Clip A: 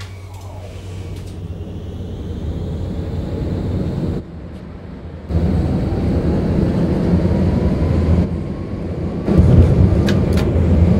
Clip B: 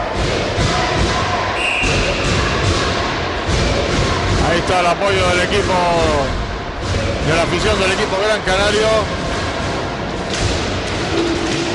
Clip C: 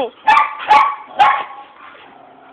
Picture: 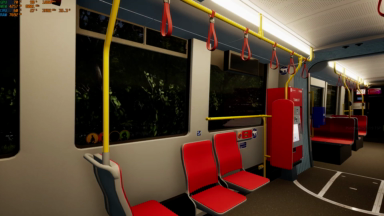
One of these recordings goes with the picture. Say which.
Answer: A